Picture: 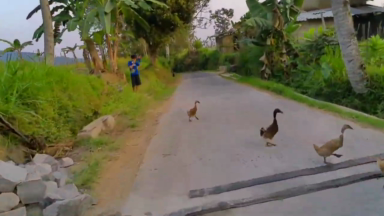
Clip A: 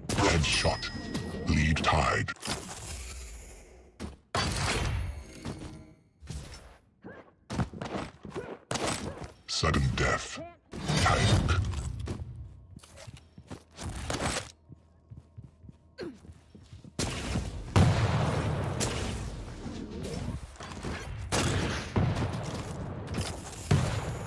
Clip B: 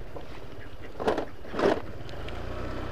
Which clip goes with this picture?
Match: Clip B